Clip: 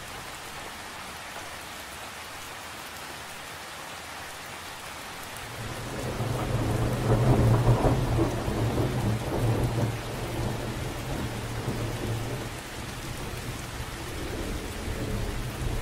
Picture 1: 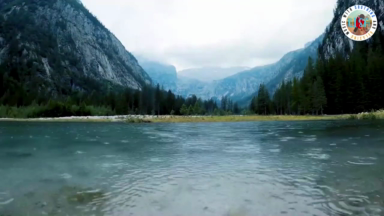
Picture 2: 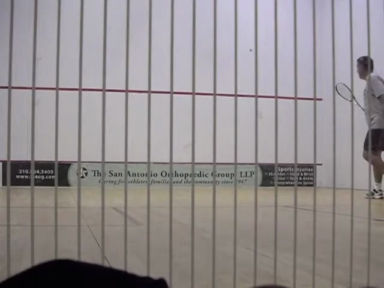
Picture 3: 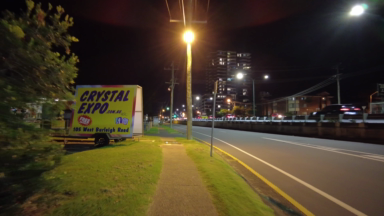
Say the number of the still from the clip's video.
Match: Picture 1